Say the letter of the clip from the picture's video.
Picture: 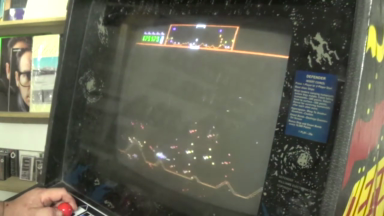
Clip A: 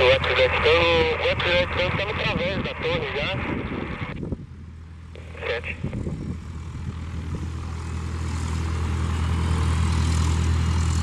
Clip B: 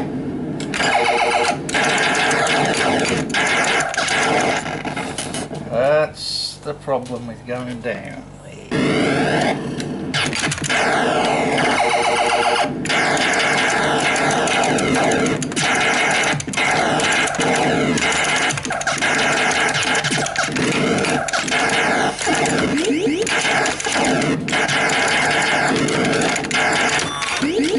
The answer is B